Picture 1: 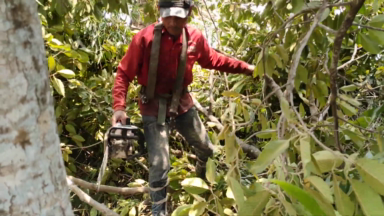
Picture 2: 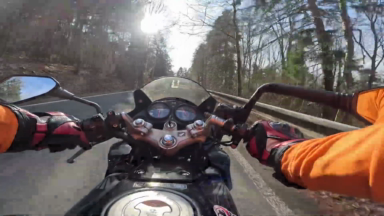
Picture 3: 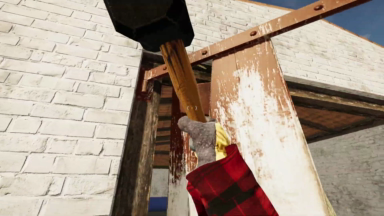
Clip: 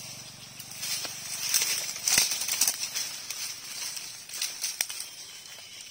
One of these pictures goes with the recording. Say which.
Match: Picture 1